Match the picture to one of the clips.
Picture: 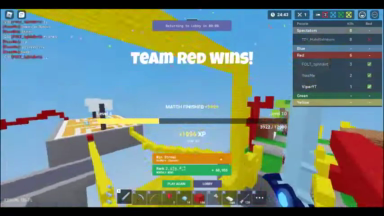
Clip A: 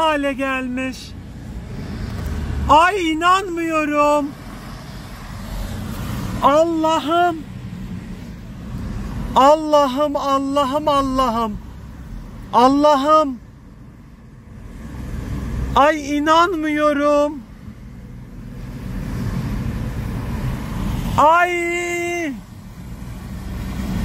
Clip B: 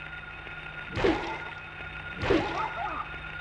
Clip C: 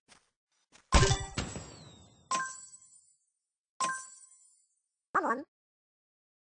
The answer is C